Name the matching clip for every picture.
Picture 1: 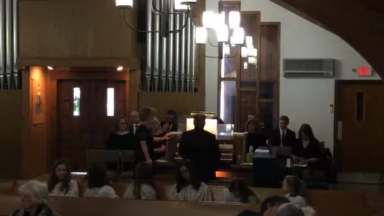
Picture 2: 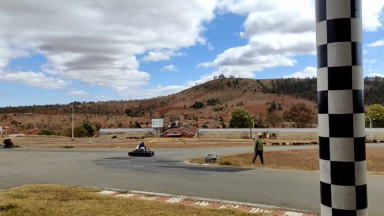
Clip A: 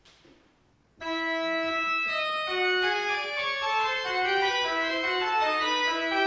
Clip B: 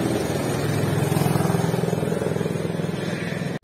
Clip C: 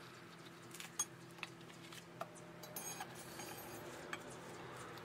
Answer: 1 A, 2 B